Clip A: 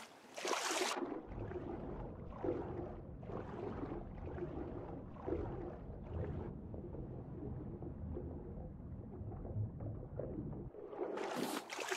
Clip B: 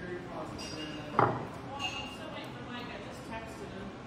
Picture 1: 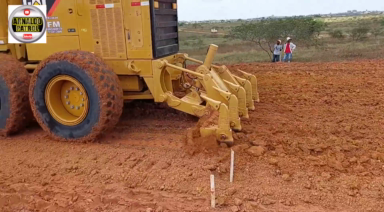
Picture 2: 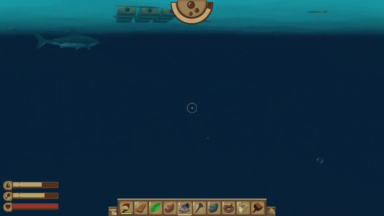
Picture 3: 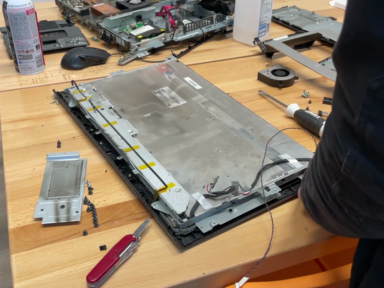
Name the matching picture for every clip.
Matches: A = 2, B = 3